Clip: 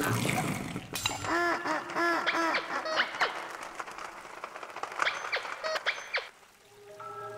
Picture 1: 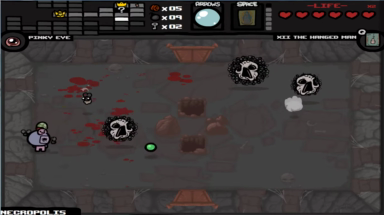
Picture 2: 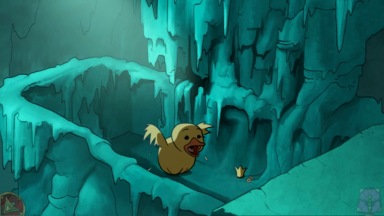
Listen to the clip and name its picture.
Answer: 2